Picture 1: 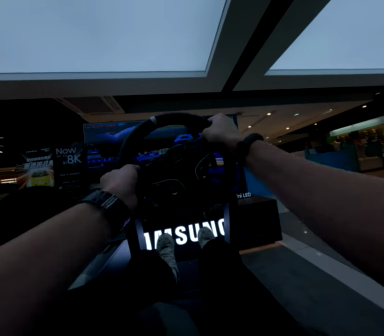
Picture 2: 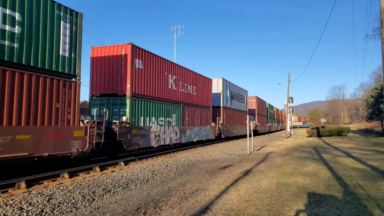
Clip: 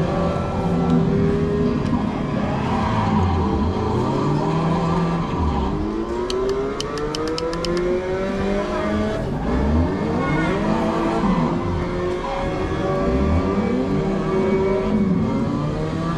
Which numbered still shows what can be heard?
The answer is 1